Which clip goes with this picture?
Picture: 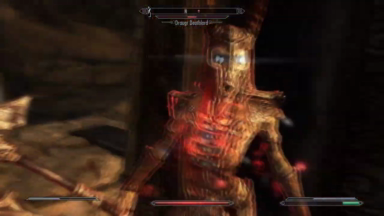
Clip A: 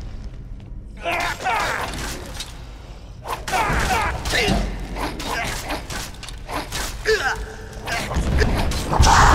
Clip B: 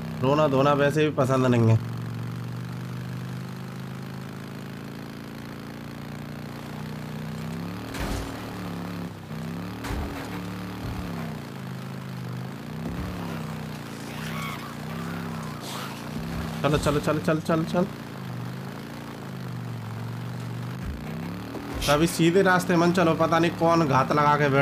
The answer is A